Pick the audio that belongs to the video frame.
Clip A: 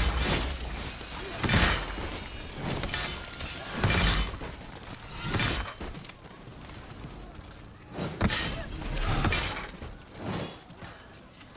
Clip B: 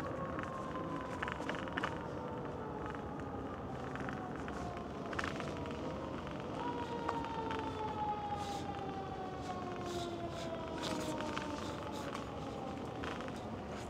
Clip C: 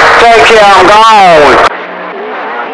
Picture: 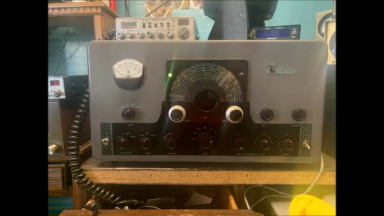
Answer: C